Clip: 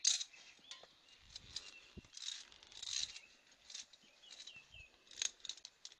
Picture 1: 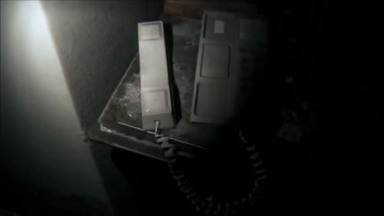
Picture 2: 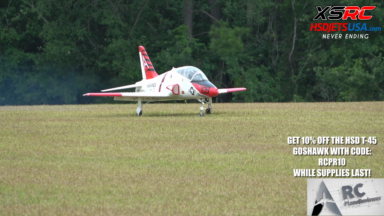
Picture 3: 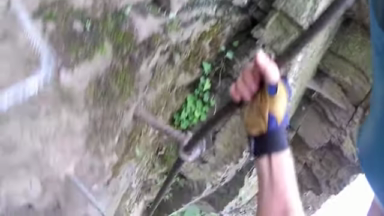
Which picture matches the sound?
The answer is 3